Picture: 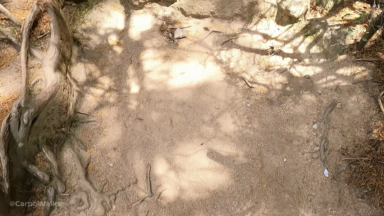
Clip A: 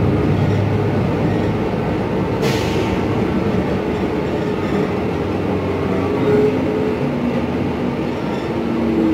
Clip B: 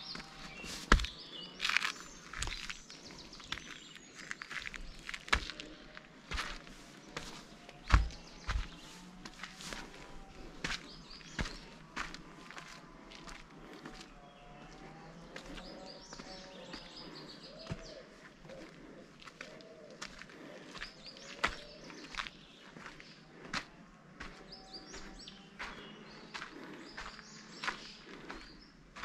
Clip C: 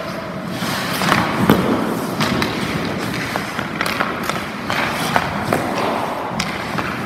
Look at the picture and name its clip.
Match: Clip B